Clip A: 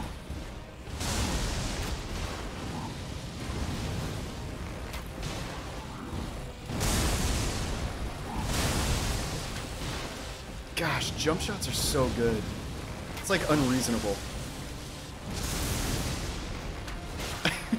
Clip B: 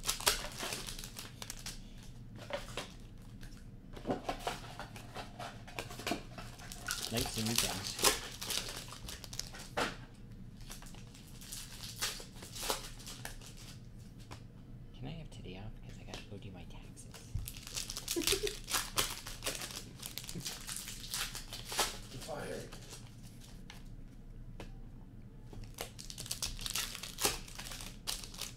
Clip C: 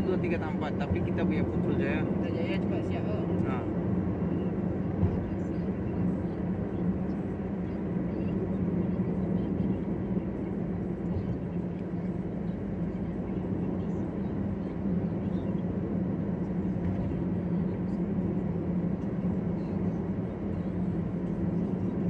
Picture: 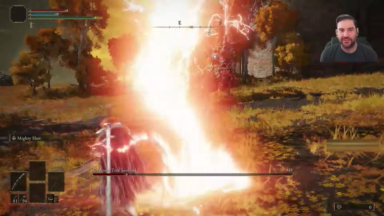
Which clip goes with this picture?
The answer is A